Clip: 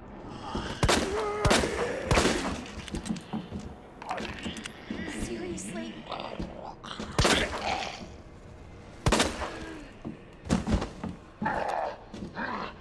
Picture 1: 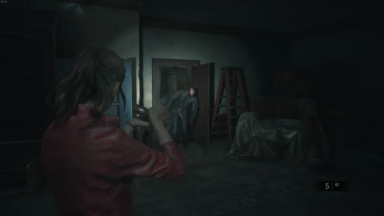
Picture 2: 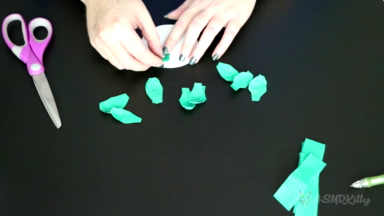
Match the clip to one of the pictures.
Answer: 1